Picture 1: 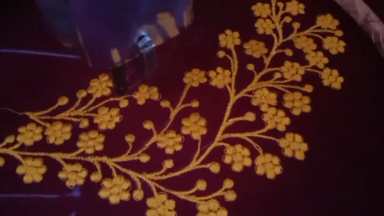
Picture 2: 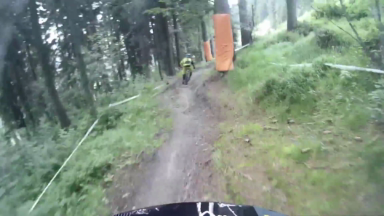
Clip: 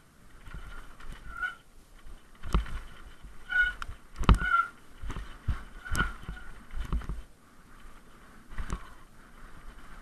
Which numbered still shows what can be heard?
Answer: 2